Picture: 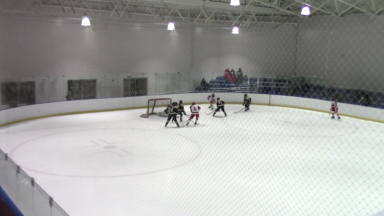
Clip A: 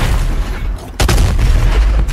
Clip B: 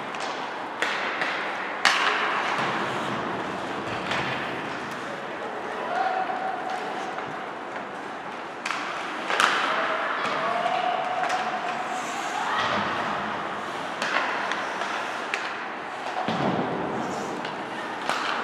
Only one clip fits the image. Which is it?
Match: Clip B